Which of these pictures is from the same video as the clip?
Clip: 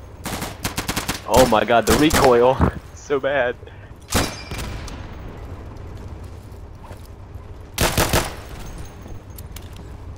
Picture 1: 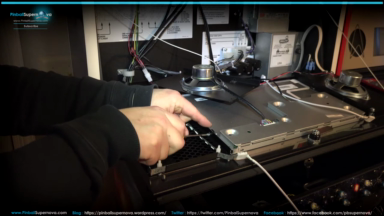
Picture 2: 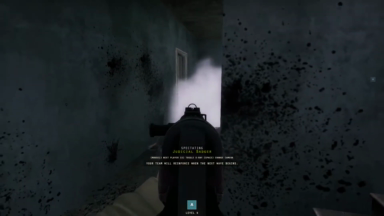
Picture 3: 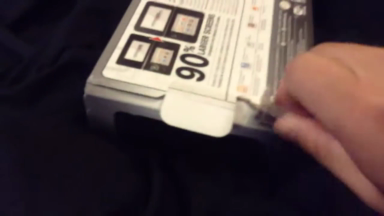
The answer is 2